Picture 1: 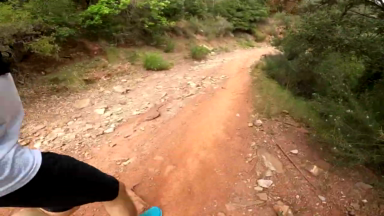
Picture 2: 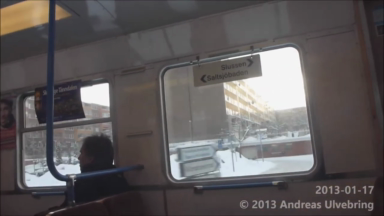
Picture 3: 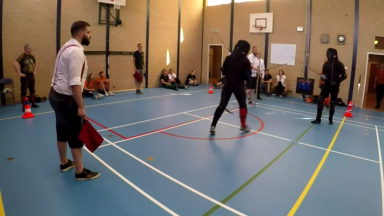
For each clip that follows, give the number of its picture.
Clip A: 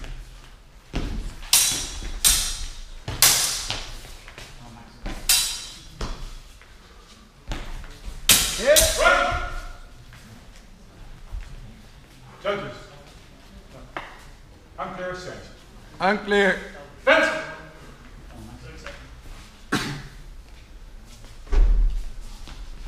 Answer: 3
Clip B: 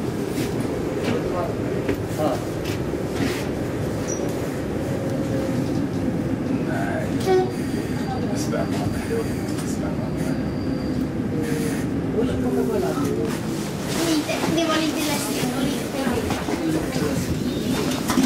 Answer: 2